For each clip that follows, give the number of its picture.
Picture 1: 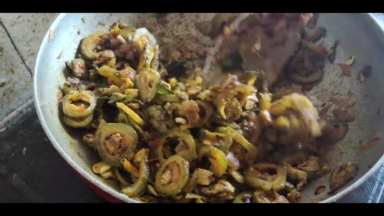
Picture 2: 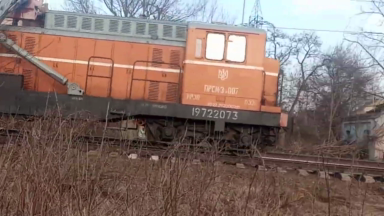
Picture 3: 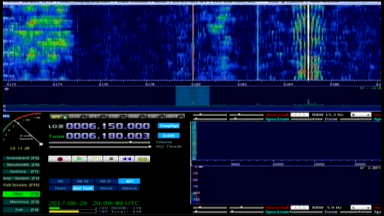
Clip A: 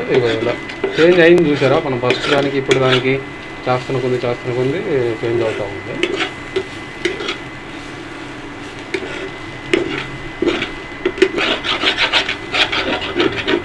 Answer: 1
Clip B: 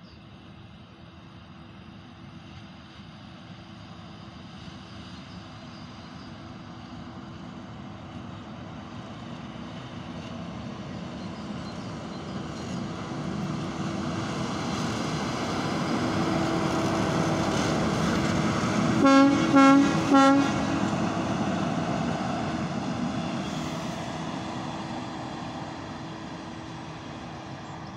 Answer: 2